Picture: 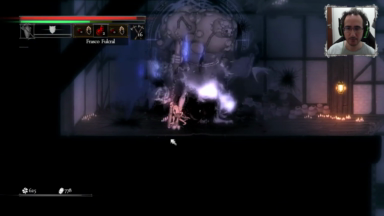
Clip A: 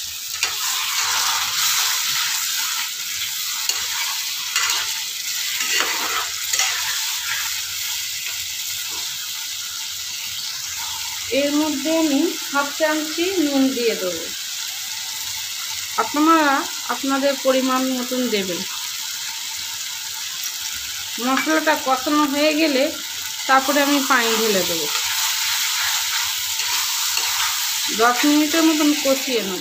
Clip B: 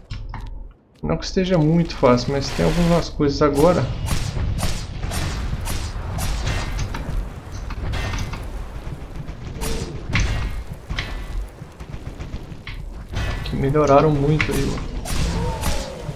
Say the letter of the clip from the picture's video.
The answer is B